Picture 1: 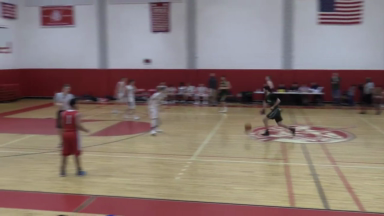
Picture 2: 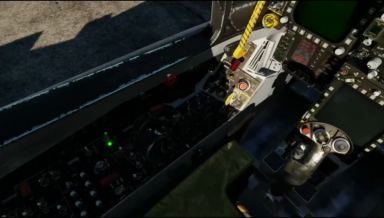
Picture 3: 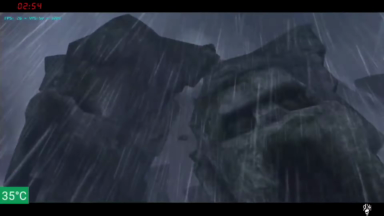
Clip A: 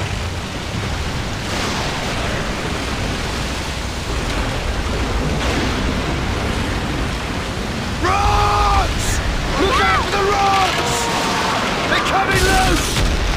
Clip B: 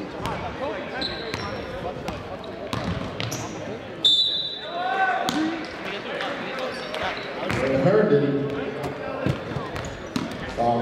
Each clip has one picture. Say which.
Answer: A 3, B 1